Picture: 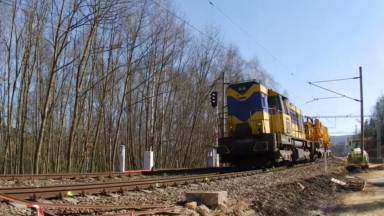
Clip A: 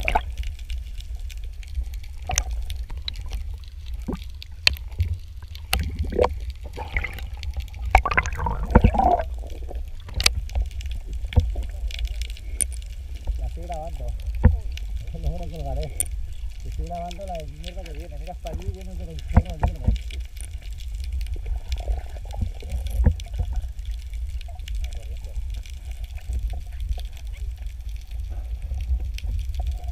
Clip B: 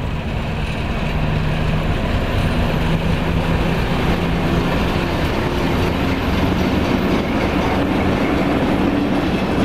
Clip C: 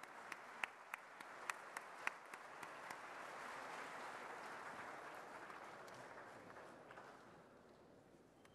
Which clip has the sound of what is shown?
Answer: B